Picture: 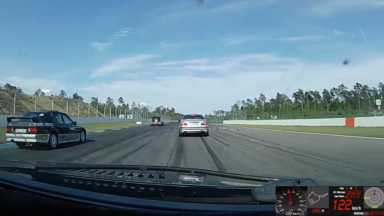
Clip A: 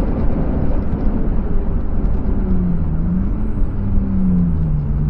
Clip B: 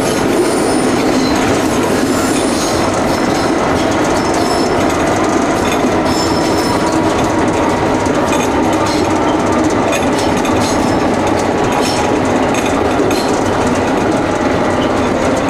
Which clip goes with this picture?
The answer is A